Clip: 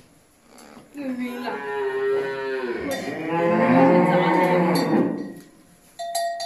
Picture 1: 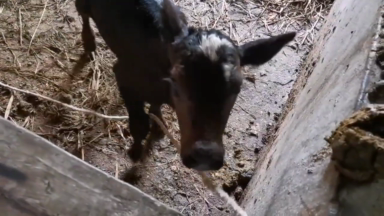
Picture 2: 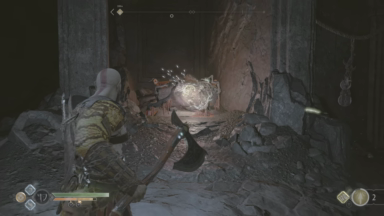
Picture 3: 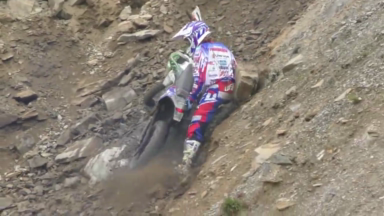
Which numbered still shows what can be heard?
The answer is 1